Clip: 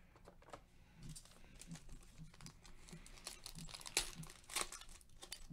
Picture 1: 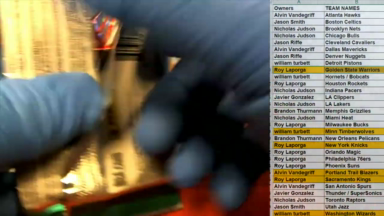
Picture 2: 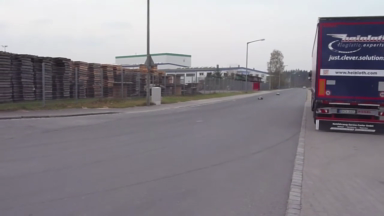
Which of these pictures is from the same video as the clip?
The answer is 1